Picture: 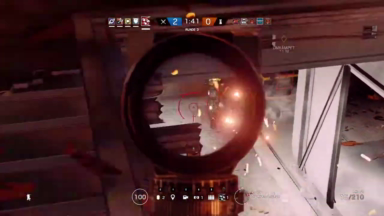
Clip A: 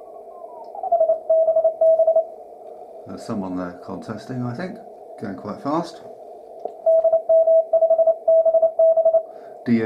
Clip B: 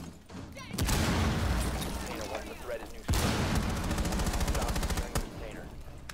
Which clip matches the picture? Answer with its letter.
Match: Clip B